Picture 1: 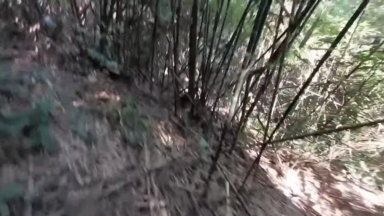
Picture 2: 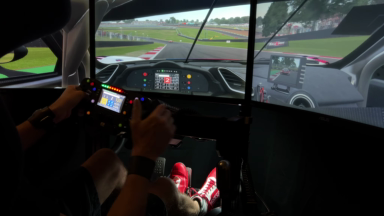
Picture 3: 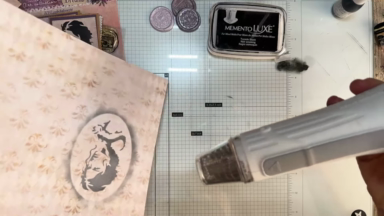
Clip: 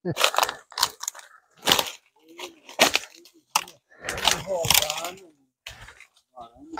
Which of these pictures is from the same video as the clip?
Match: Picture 1